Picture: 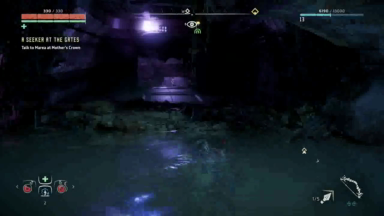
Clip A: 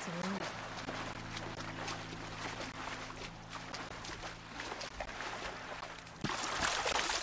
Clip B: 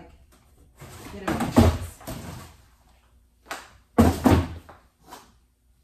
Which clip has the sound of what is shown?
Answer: A